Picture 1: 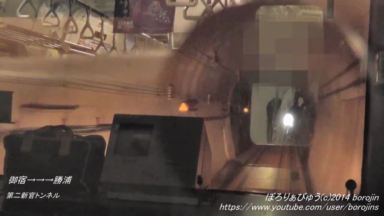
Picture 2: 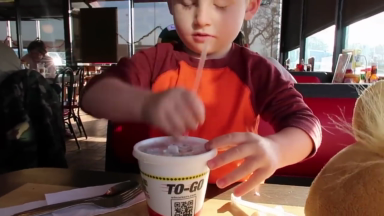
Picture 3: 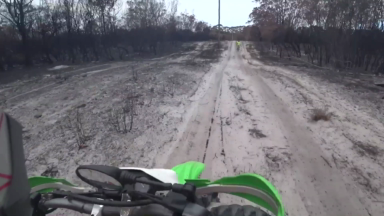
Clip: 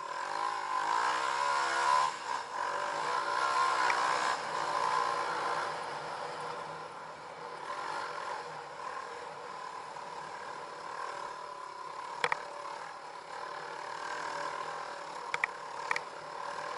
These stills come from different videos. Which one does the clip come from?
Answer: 3